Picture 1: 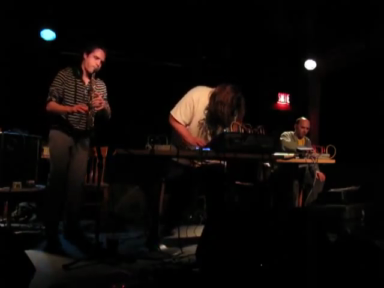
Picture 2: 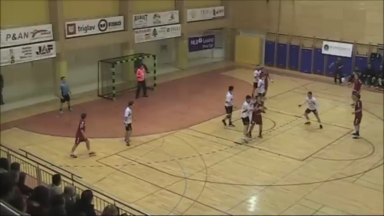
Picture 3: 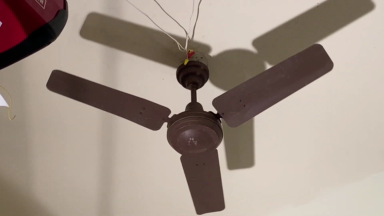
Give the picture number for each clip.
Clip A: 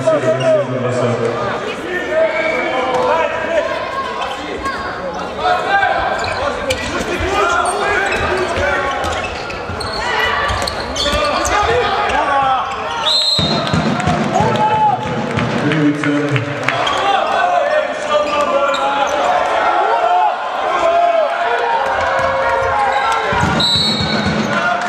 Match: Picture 2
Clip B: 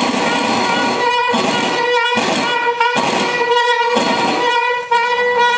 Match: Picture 1